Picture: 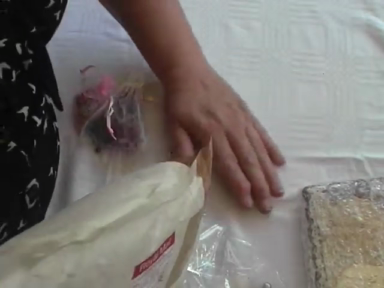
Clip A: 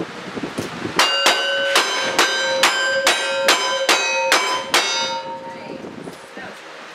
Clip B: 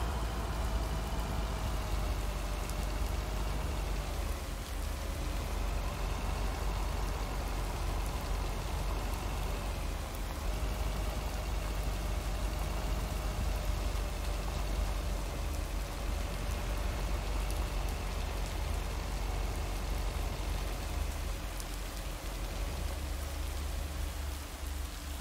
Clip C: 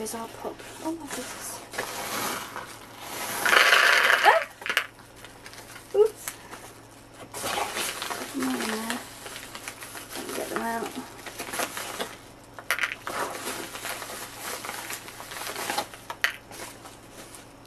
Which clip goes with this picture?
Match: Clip C